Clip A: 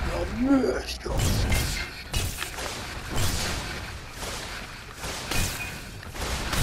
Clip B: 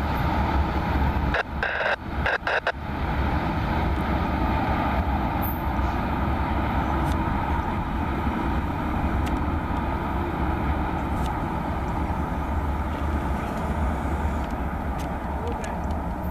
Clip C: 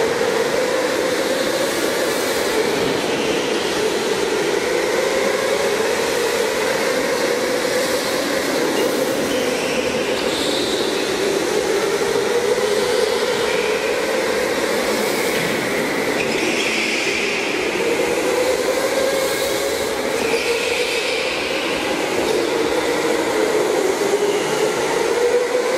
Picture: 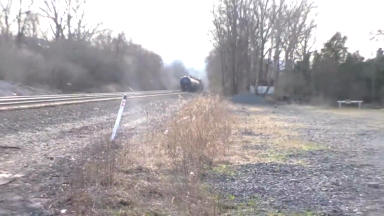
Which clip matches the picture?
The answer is B